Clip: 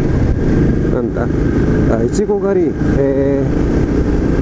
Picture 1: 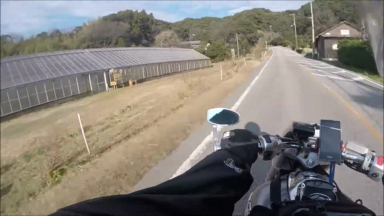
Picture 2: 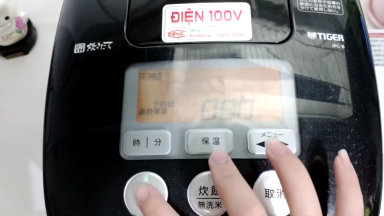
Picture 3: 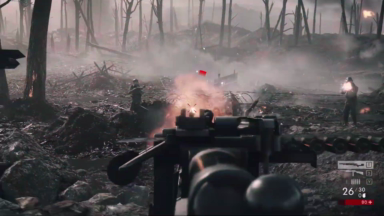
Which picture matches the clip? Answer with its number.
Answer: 1